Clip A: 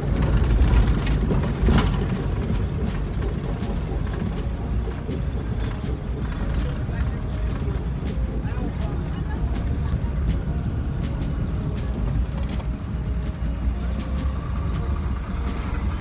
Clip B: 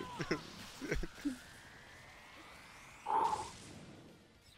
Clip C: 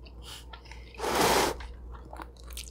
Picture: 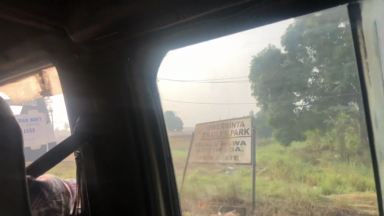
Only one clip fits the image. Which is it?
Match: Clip A